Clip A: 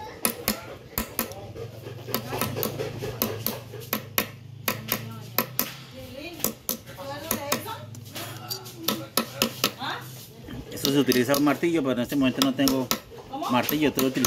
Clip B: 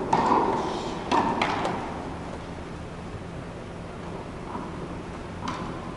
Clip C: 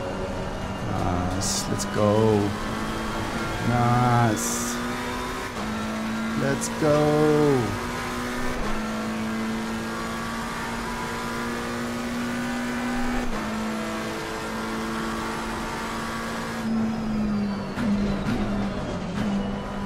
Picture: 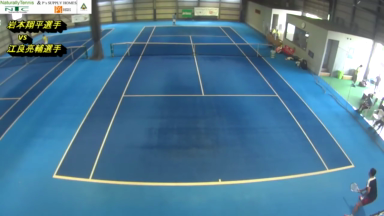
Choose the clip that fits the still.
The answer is B